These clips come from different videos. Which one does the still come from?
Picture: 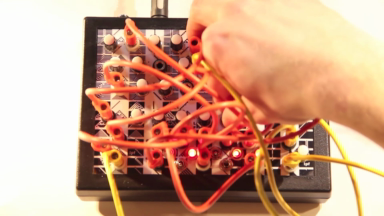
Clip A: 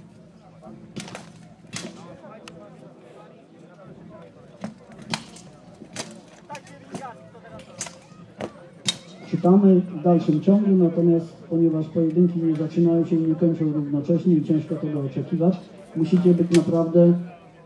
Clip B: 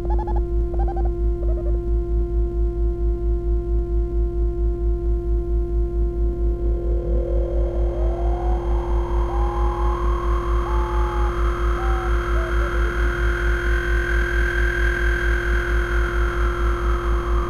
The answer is B